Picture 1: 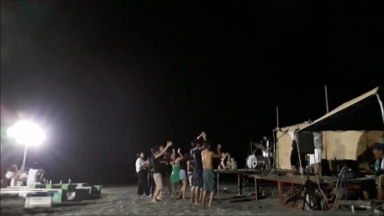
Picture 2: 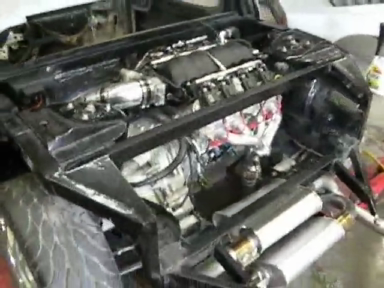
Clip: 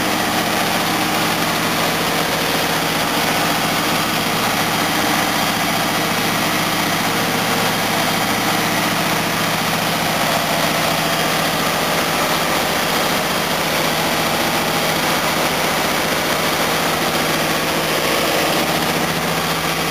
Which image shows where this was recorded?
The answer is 2